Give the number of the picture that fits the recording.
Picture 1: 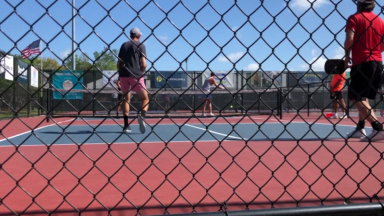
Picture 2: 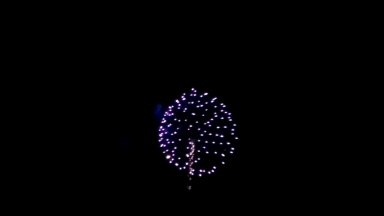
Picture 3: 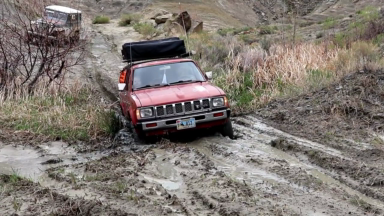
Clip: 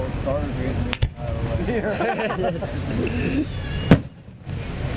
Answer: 2